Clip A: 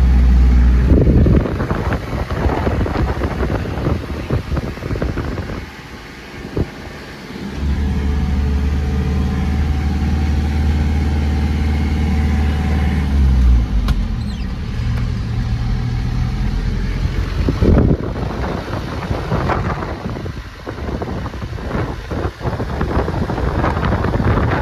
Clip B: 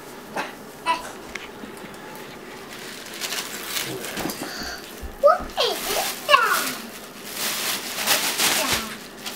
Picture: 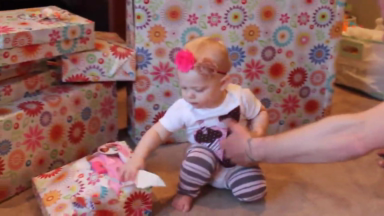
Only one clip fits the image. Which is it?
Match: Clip B